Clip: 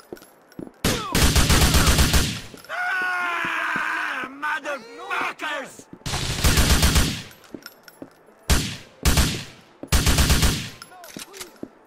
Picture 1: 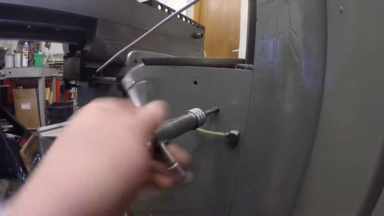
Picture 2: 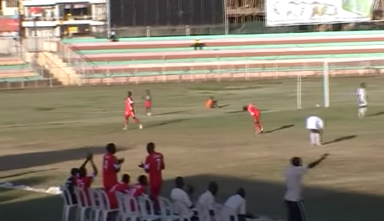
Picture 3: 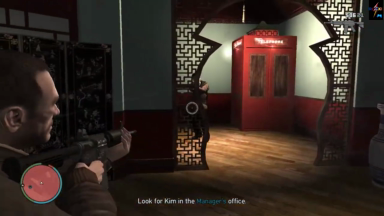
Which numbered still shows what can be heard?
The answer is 3